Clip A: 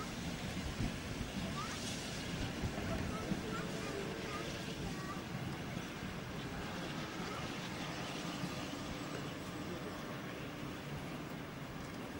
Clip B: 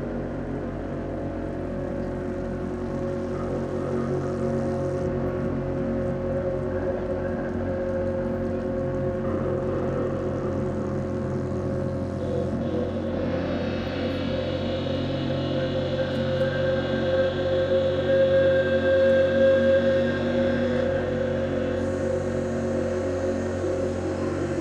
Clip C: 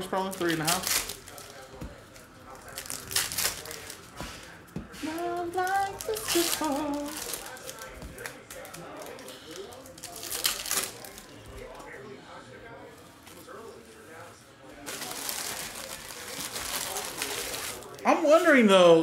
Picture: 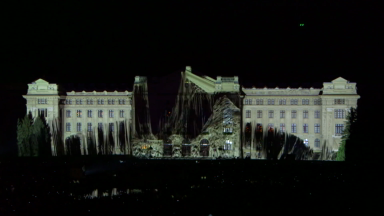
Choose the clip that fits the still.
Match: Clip B